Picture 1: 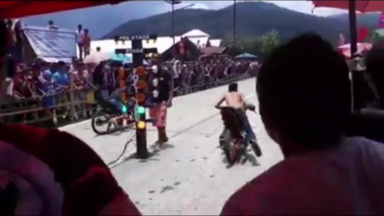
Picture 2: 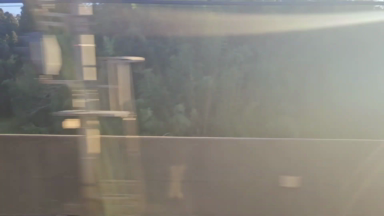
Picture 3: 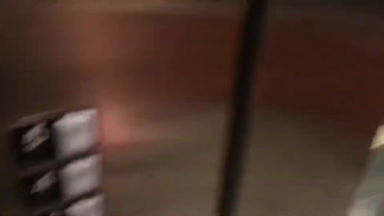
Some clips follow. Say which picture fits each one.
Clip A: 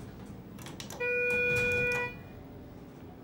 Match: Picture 3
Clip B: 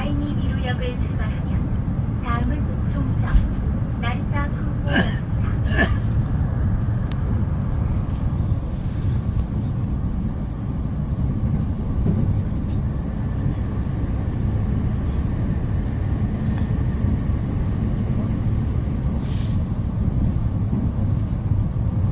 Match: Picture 2